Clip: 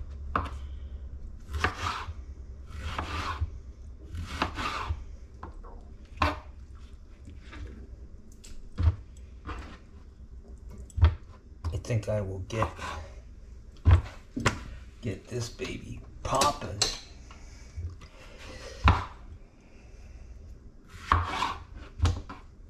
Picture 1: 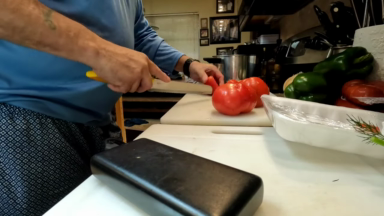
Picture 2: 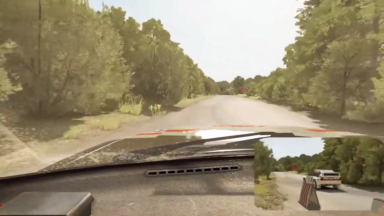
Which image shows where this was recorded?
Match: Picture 1